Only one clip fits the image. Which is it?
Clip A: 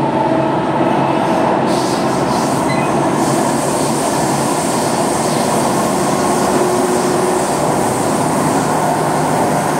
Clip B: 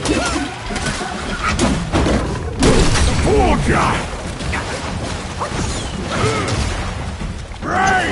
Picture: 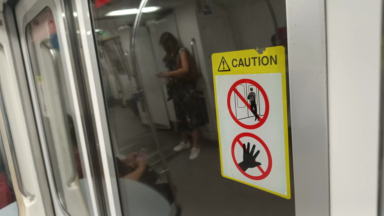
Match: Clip A